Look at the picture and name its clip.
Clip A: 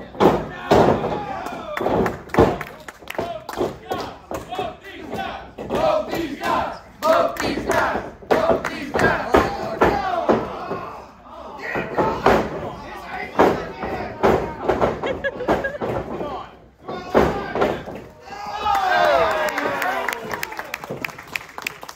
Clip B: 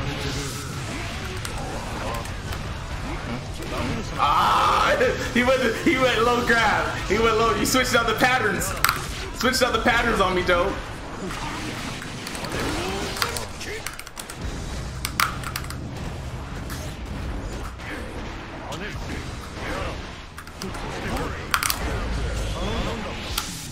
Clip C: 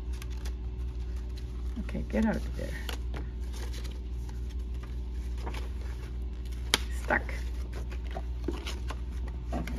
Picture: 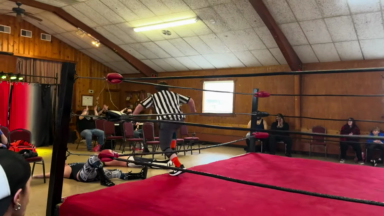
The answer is A